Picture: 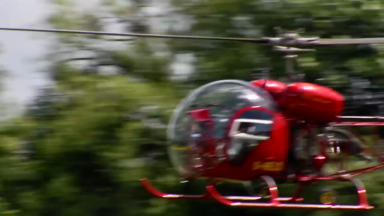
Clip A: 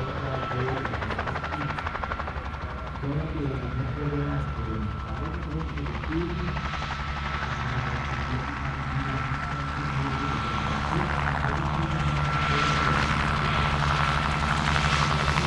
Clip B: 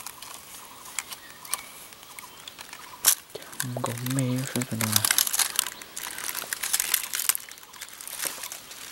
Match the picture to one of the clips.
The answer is A